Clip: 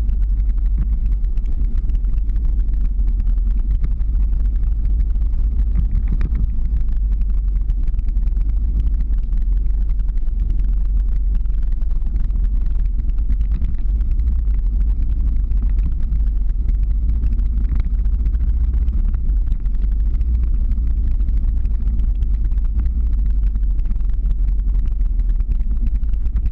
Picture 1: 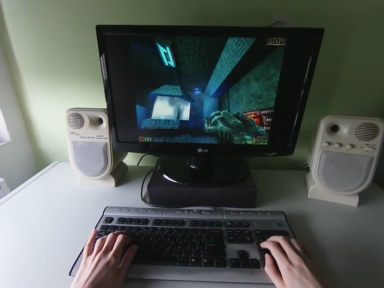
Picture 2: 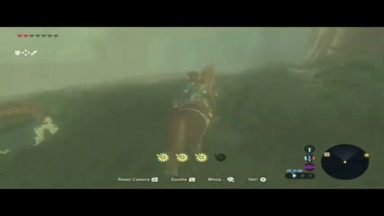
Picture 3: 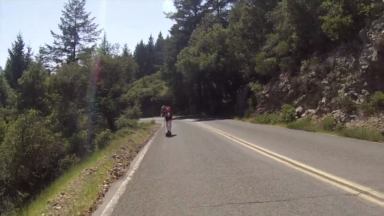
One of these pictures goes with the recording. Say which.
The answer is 3